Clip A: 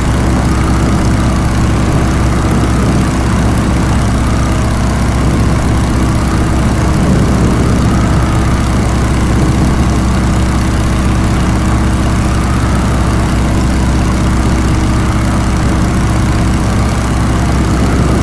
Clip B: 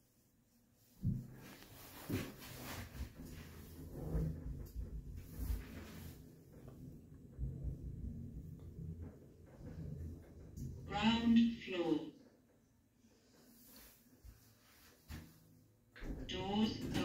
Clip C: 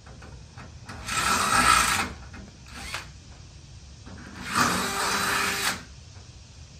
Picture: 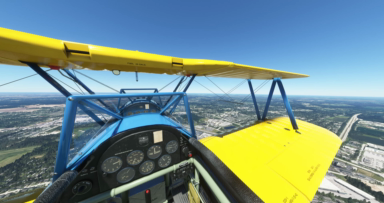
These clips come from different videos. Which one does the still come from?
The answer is A